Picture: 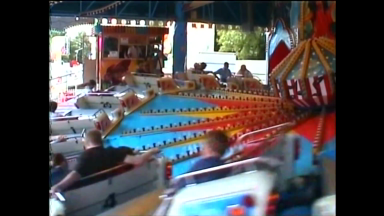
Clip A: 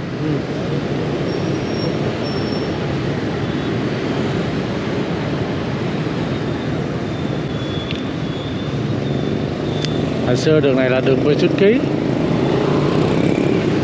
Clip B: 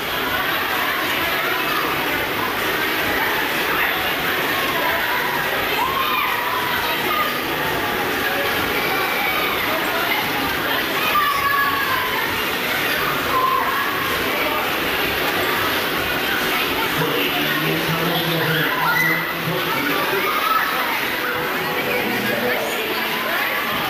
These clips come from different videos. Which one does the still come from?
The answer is B